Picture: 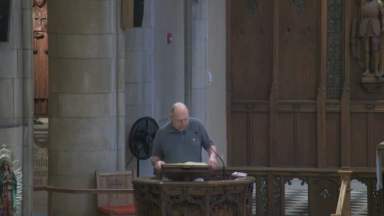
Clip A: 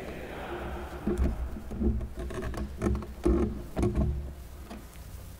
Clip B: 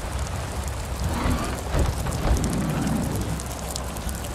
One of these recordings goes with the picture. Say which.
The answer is A